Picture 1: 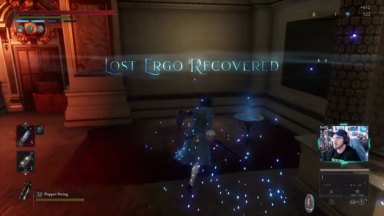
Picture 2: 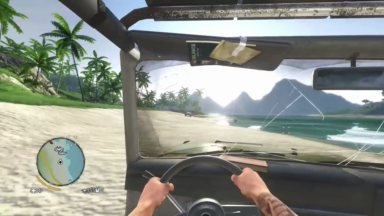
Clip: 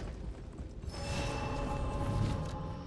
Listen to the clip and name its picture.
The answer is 1